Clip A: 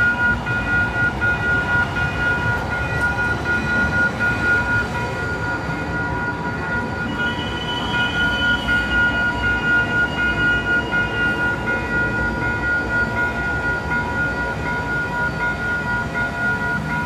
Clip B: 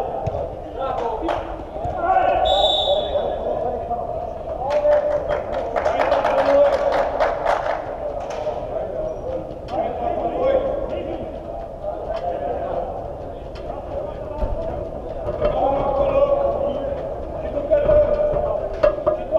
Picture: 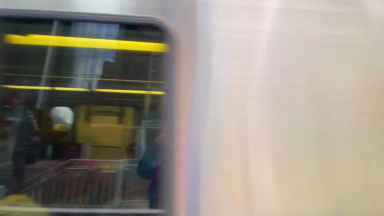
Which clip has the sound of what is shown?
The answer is A